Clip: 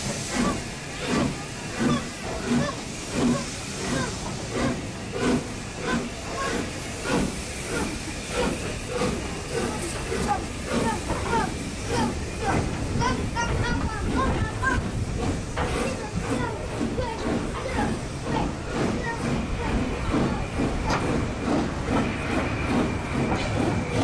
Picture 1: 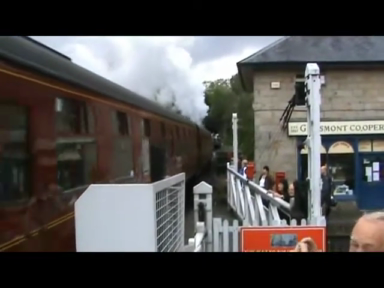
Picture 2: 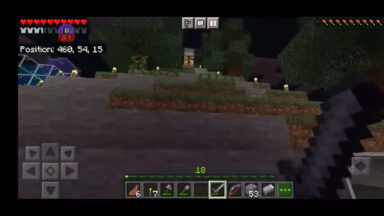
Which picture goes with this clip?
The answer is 1